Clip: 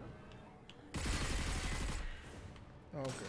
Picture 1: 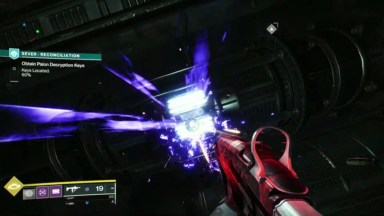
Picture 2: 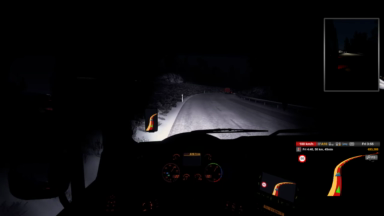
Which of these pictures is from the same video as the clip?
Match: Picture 1